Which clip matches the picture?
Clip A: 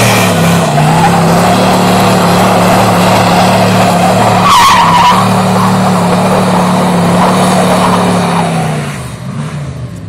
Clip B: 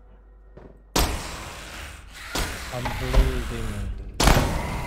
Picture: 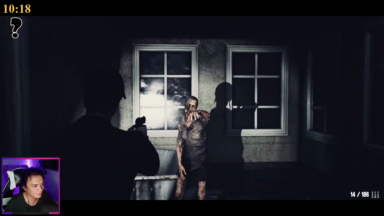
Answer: B